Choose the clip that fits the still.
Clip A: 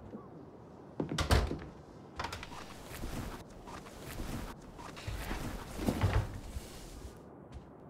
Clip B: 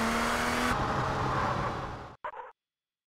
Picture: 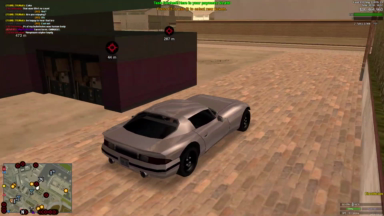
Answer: B